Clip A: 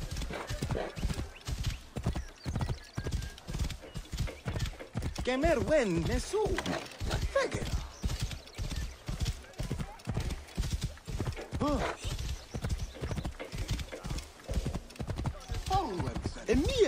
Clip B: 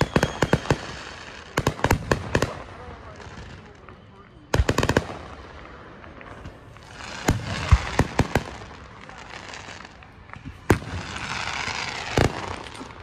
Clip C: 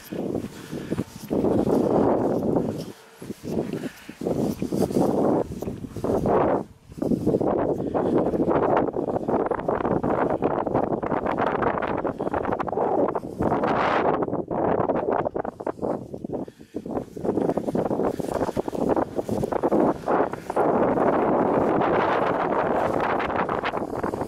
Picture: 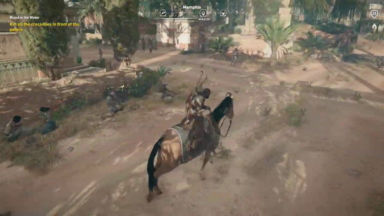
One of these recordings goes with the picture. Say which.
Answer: A